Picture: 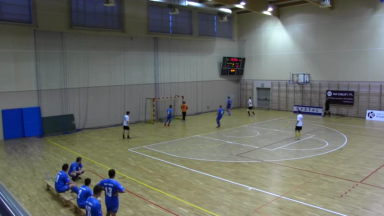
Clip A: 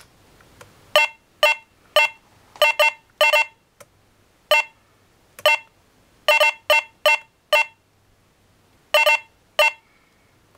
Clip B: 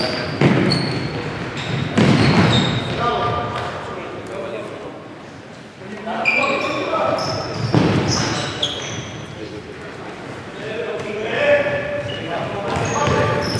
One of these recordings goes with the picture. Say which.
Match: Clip B